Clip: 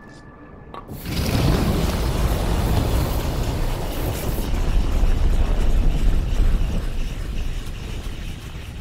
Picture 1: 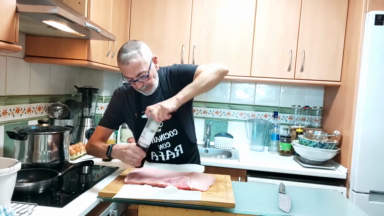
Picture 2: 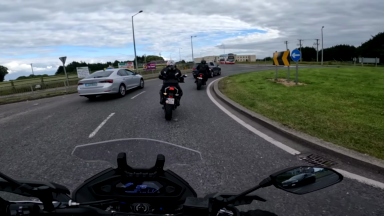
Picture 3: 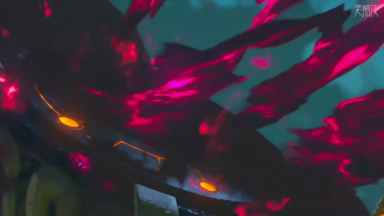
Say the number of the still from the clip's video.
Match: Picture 3